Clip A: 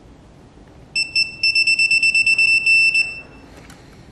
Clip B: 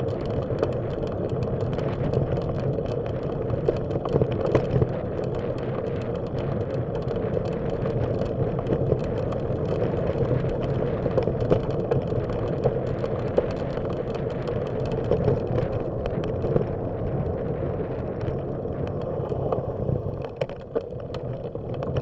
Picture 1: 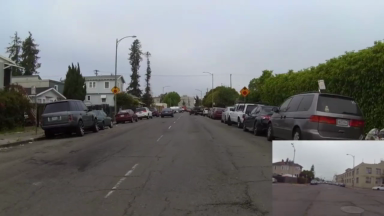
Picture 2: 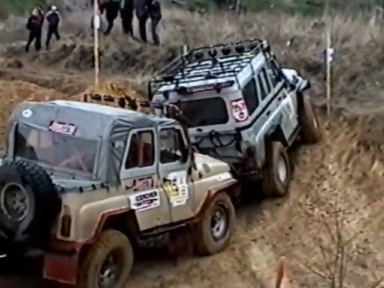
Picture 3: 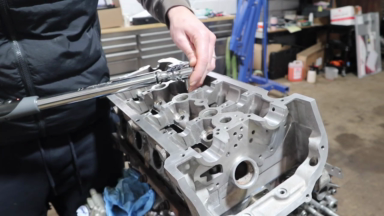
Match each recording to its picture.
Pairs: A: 3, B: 1